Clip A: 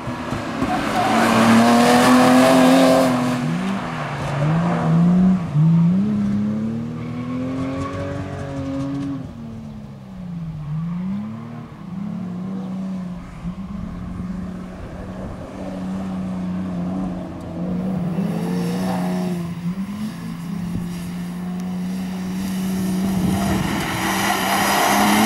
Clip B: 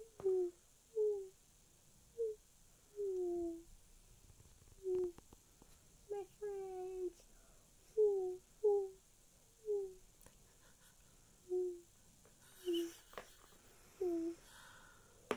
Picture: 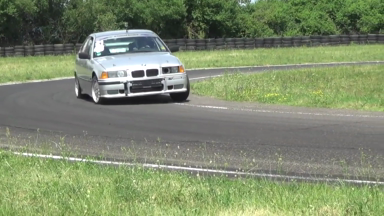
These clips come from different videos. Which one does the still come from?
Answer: A